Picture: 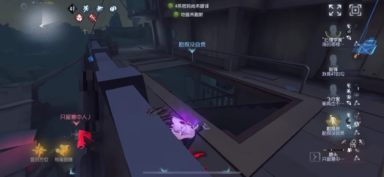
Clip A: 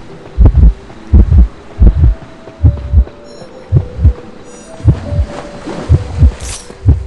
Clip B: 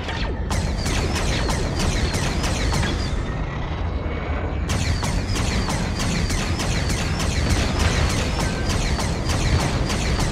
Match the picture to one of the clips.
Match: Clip A